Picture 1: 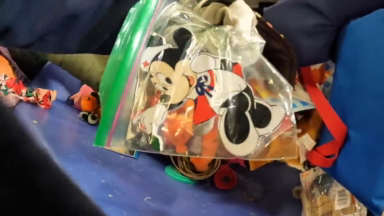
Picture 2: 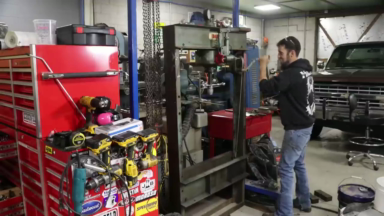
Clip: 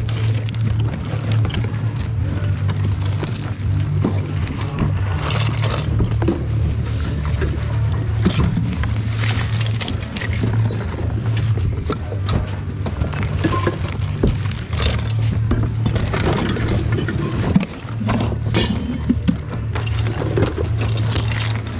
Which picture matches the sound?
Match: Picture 1